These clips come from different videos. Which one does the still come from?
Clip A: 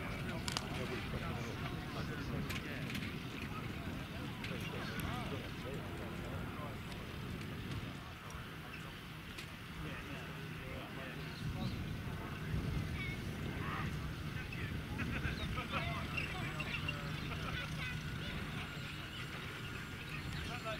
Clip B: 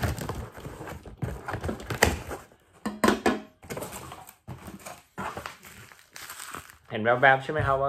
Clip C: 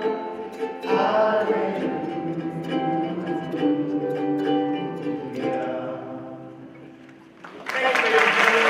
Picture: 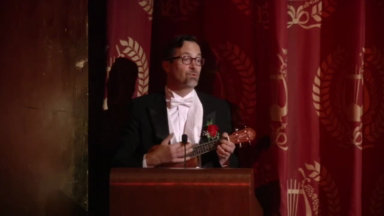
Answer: C